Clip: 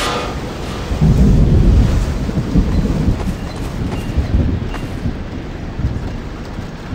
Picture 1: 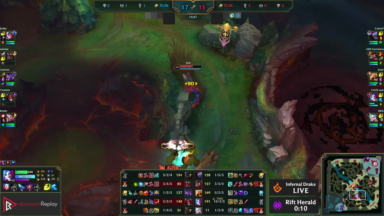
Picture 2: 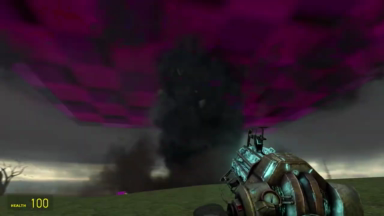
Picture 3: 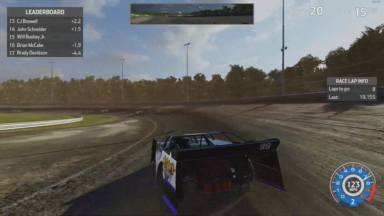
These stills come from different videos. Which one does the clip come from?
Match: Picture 2